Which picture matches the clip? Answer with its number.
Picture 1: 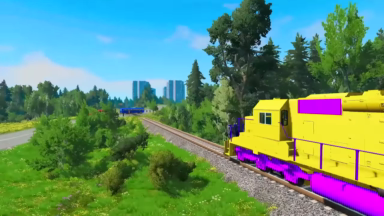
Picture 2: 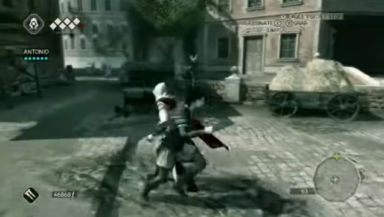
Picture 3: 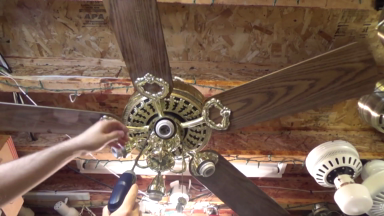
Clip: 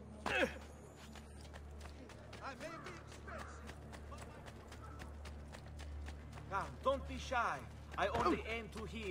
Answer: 2